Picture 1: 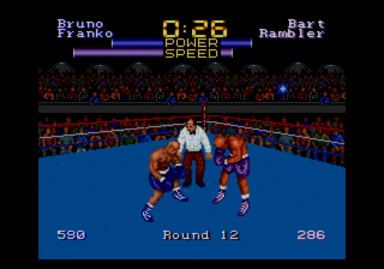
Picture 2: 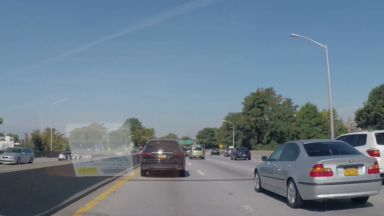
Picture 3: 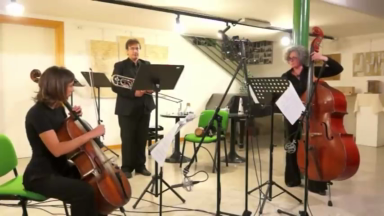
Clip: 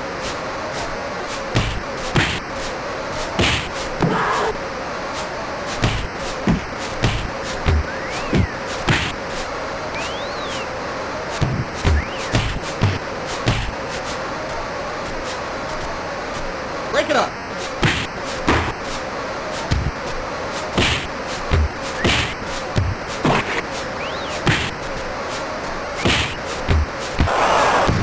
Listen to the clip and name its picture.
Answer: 1